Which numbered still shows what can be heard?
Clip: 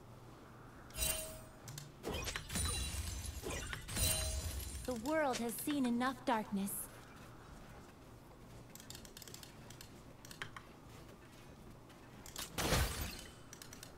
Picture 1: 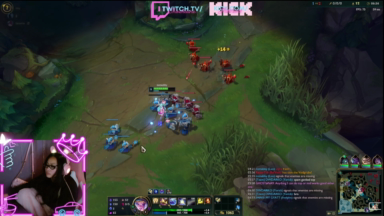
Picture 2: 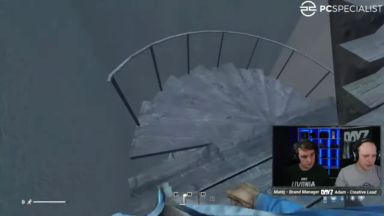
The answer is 1